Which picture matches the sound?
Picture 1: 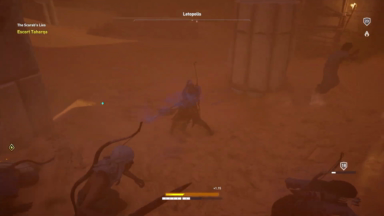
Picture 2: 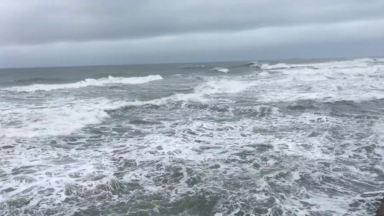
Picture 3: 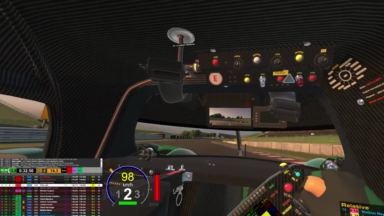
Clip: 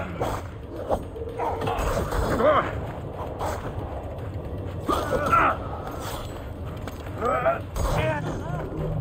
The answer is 1